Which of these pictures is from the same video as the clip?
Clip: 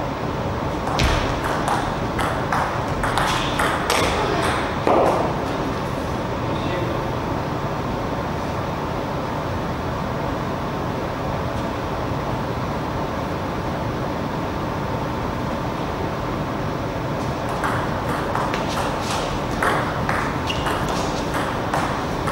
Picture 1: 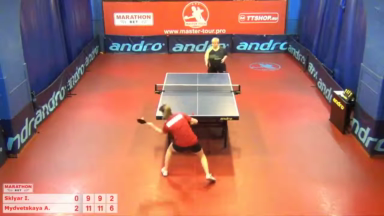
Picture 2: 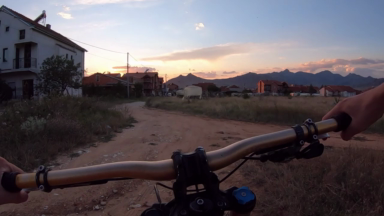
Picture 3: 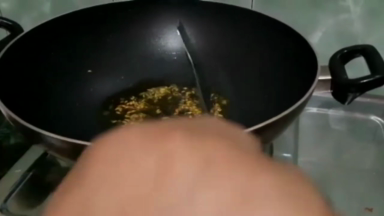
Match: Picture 1